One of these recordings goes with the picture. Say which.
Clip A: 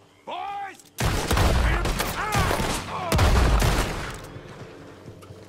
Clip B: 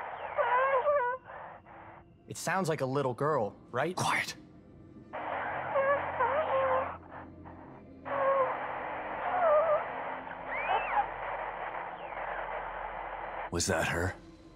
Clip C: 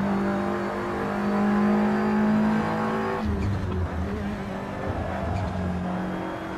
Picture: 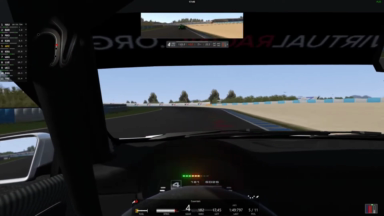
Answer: C